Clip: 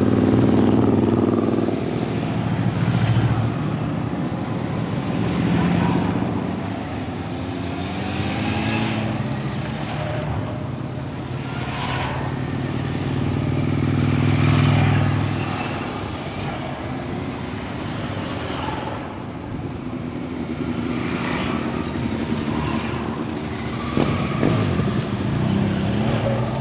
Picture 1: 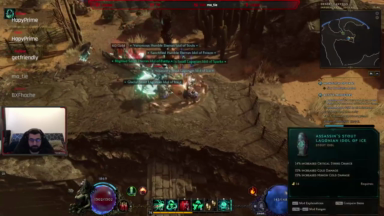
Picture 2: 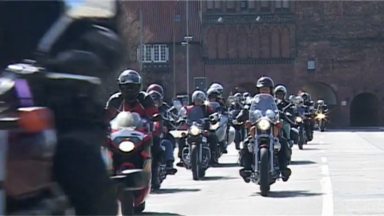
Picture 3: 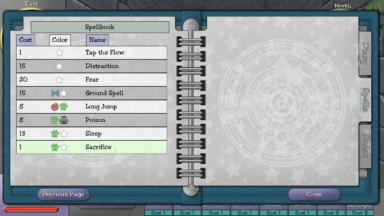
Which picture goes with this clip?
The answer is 2